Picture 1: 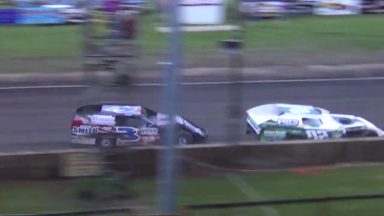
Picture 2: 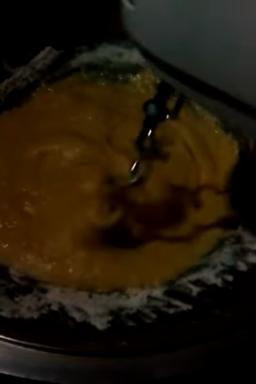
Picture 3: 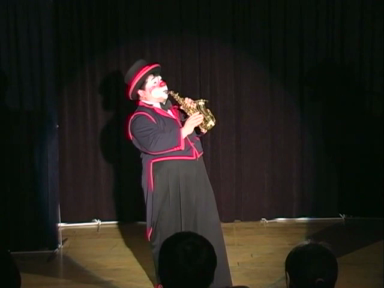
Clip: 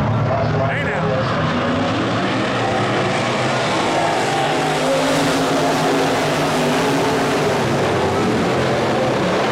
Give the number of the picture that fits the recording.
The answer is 1